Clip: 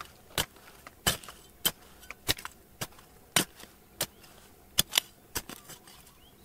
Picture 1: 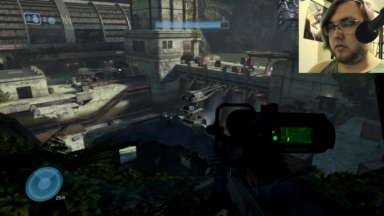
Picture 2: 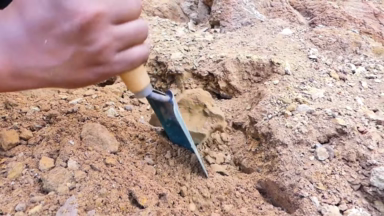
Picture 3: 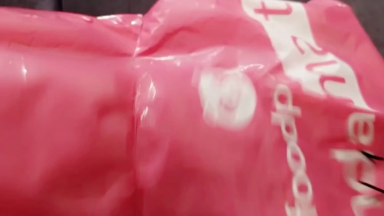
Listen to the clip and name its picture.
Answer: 2